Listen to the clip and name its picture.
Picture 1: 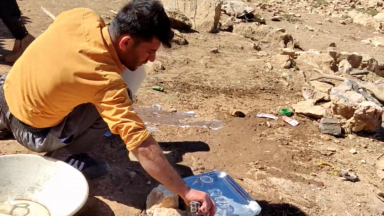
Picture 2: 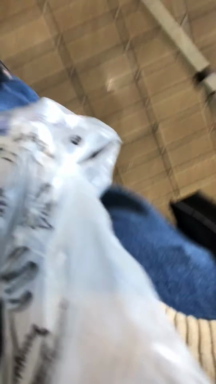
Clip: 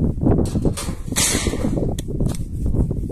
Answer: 1